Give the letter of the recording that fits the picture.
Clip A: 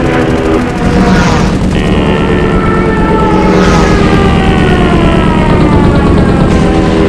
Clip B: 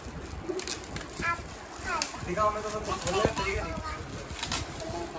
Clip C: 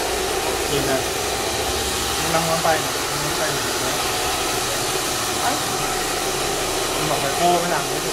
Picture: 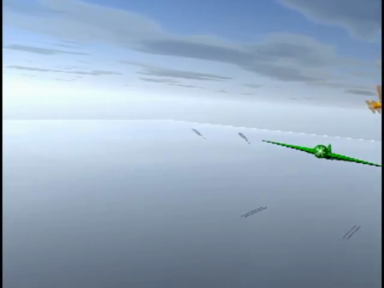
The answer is A